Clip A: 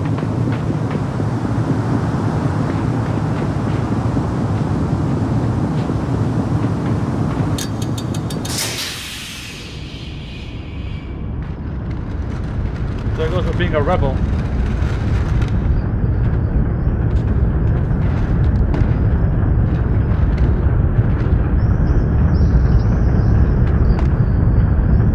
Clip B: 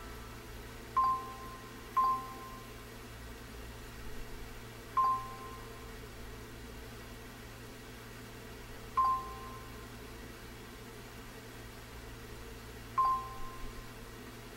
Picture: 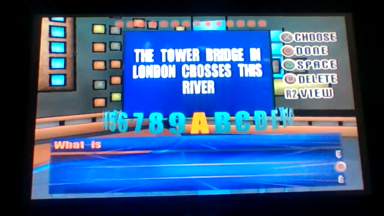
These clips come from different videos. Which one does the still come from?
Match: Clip B